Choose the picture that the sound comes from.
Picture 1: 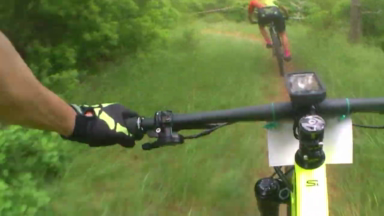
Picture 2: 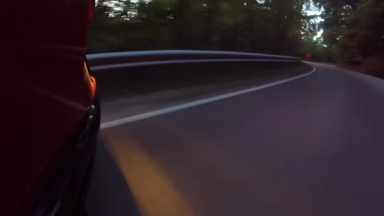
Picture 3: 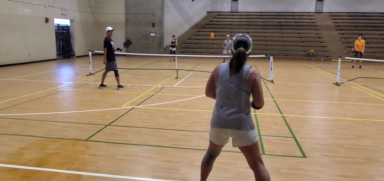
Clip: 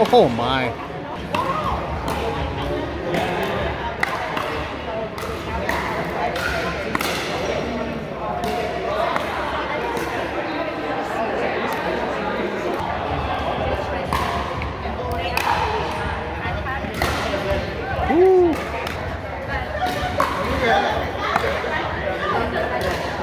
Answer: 3